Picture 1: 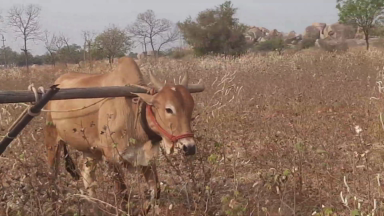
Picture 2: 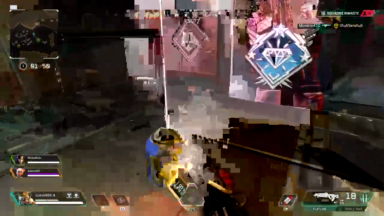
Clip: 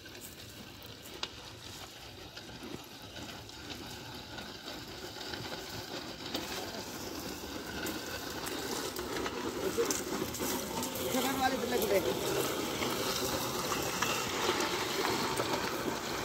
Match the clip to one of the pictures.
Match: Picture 1